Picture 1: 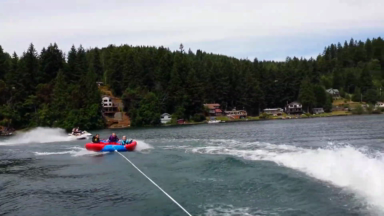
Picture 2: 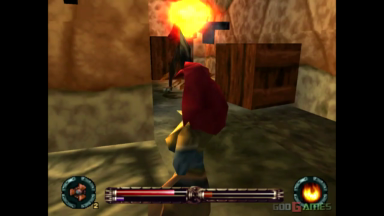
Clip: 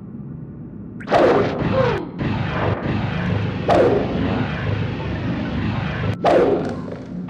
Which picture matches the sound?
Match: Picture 2